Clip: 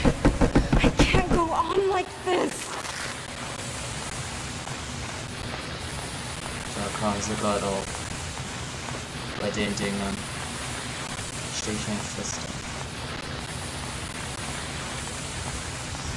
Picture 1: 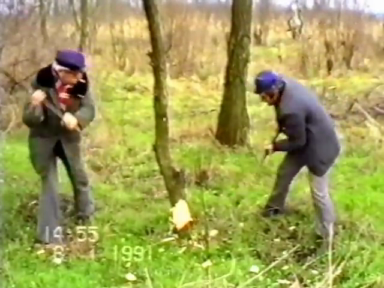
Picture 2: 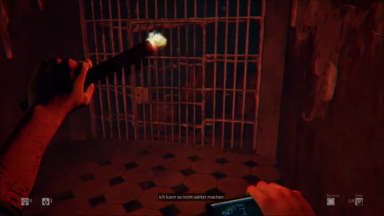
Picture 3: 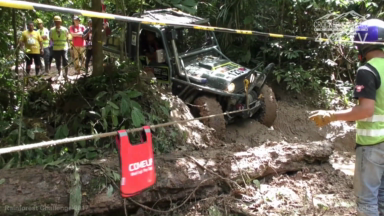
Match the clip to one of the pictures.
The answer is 2